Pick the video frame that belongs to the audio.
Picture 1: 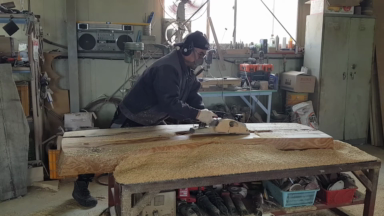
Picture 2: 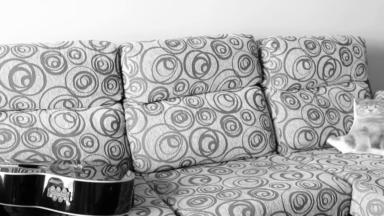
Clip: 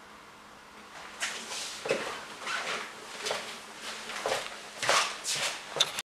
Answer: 2